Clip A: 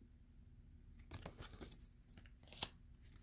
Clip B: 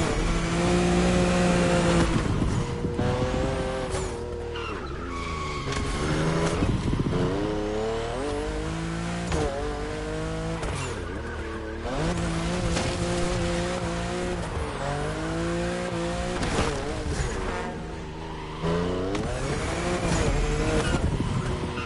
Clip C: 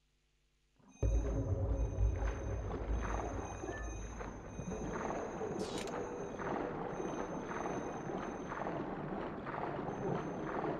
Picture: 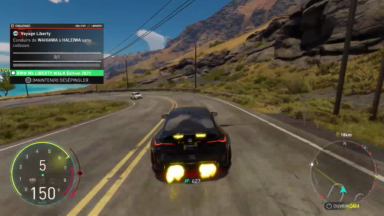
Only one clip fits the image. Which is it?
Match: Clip B